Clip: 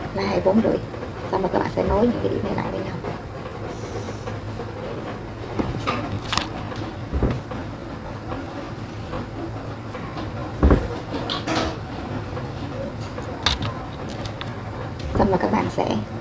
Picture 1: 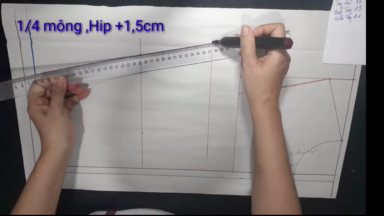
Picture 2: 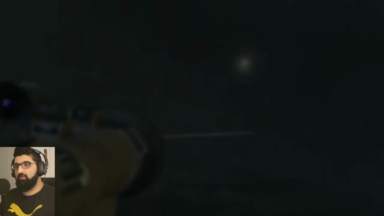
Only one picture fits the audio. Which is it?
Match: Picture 1